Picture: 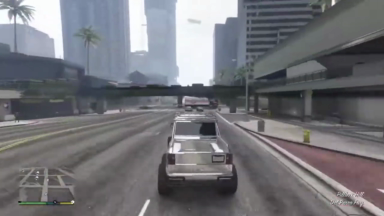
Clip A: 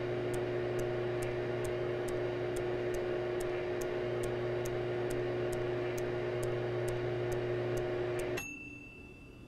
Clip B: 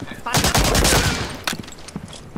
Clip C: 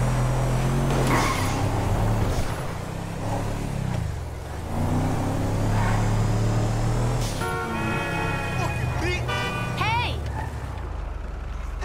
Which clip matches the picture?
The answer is C